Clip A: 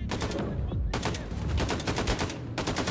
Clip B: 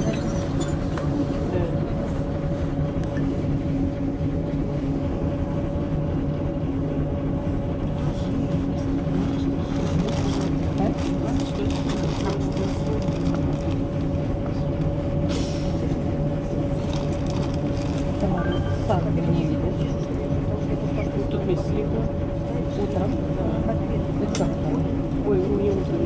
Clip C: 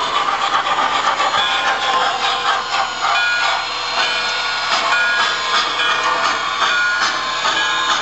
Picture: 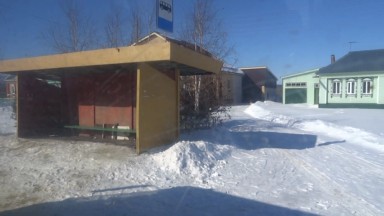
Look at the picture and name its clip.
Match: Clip B